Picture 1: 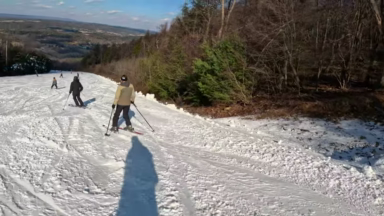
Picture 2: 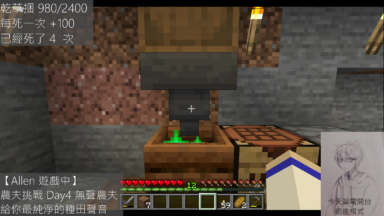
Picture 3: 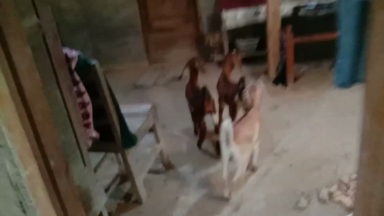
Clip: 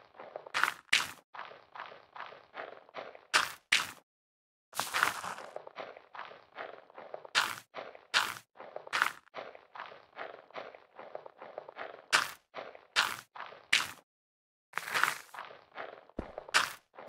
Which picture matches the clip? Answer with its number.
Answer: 2